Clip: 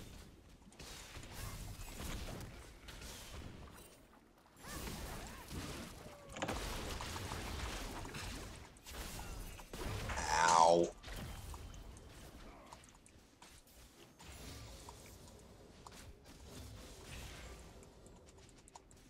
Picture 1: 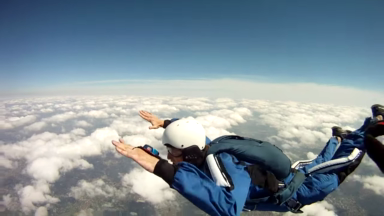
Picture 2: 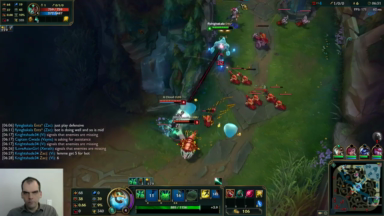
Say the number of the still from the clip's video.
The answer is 2